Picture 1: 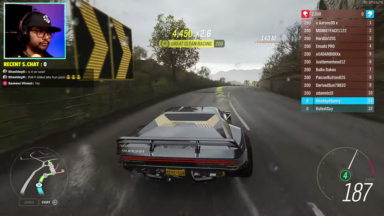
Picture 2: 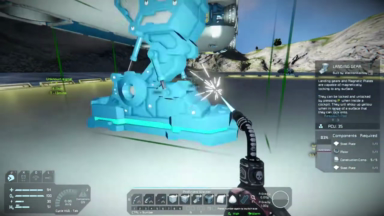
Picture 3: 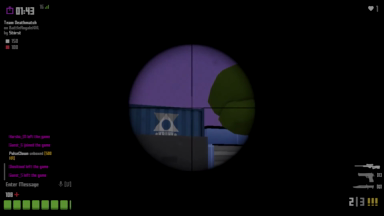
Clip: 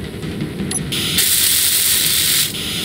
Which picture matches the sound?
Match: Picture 2